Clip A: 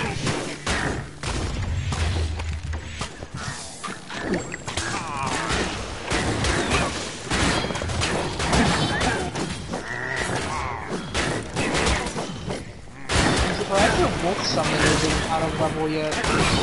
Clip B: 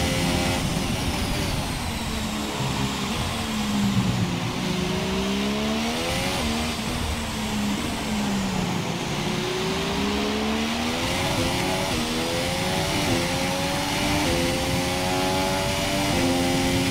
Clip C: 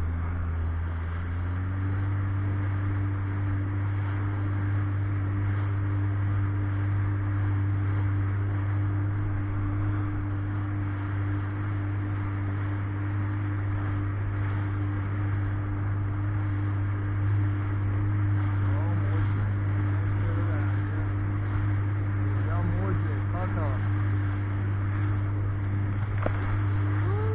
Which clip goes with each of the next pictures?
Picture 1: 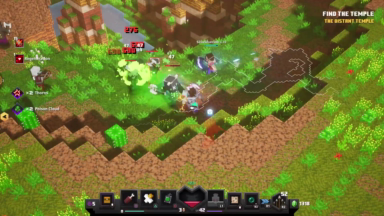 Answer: A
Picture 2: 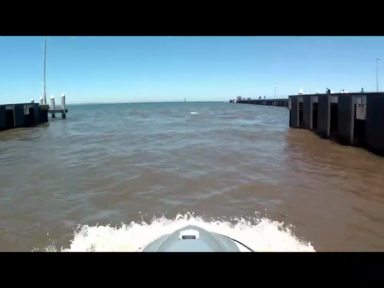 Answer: C